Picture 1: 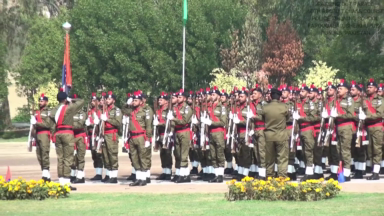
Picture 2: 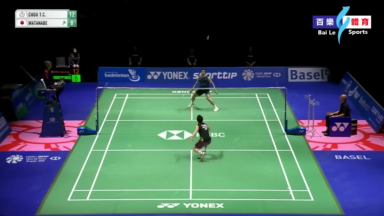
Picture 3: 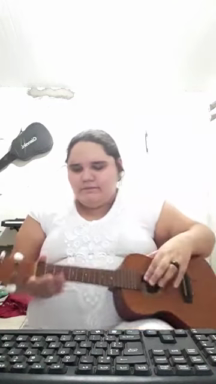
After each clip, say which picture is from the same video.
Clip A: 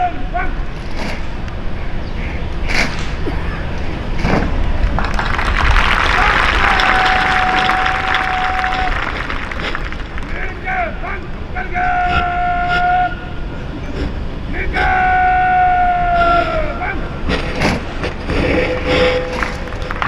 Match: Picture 1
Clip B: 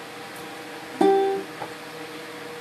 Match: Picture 3